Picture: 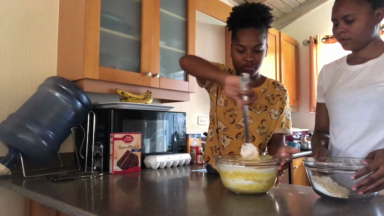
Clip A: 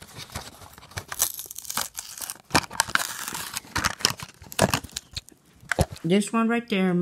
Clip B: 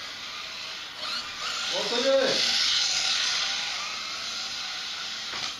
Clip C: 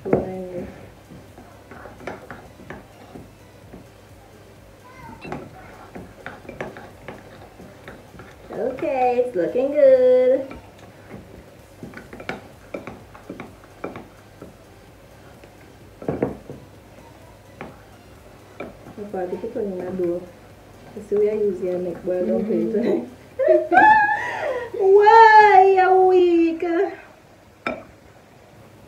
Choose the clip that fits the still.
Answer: C